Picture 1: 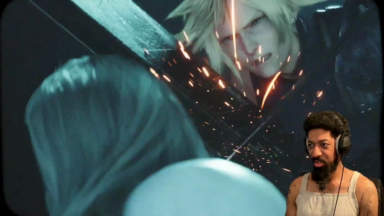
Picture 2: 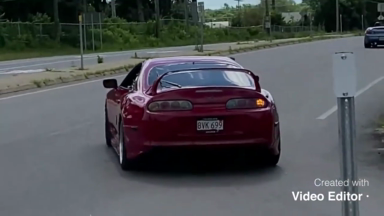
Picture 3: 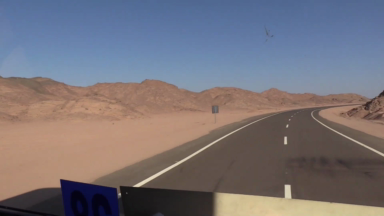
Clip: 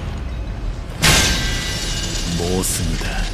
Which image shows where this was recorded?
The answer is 1